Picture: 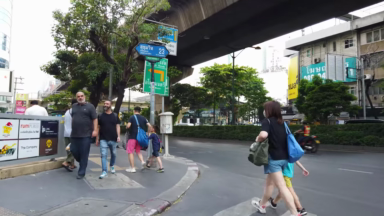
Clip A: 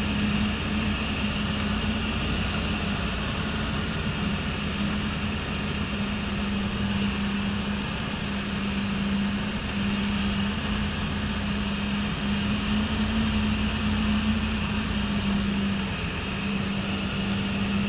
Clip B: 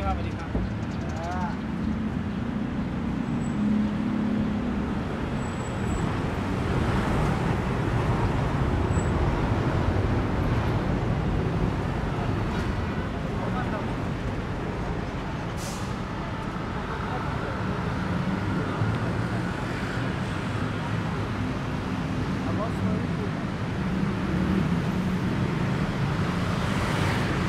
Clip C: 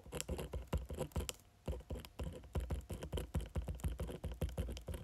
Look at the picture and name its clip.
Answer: B